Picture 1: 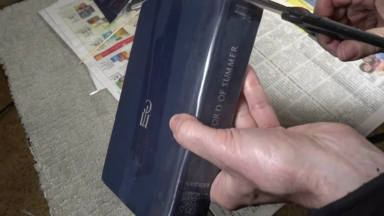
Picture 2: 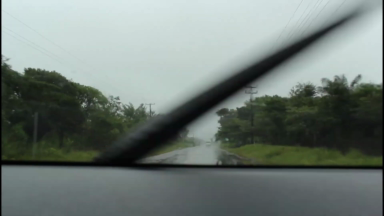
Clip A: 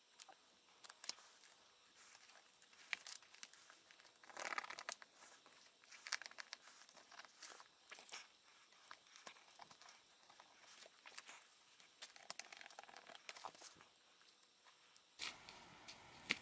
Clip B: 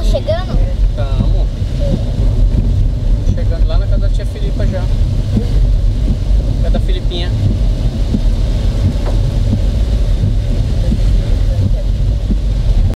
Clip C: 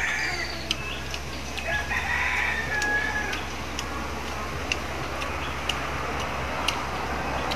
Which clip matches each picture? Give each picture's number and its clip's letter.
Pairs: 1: A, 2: B